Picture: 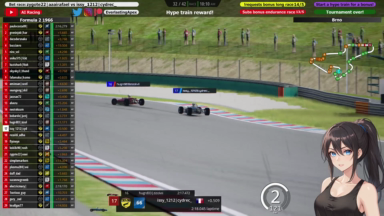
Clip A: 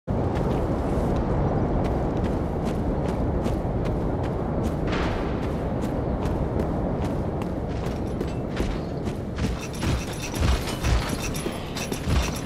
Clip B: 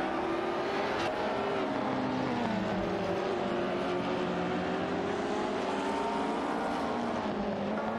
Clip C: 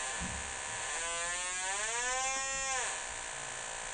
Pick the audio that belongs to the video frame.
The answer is B